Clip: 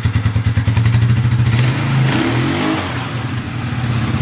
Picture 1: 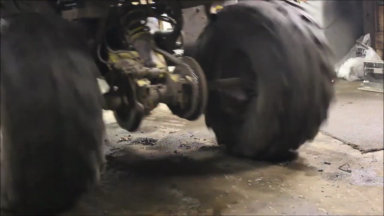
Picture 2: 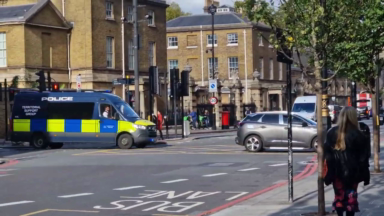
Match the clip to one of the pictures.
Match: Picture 1